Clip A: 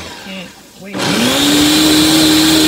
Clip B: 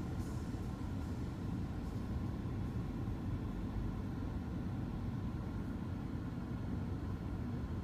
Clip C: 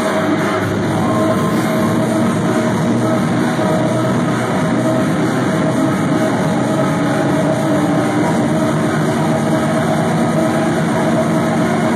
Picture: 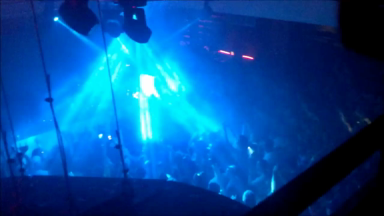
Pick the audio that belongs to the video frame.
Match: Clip C